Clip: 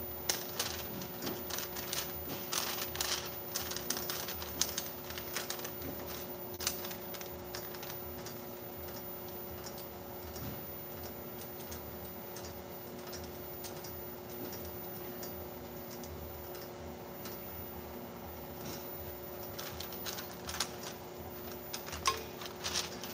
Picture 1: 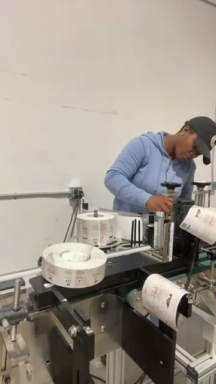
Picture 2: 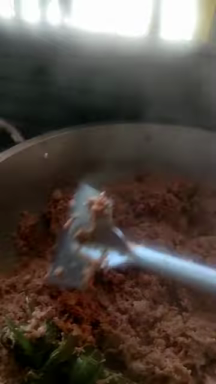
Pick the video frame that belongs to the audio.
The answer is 1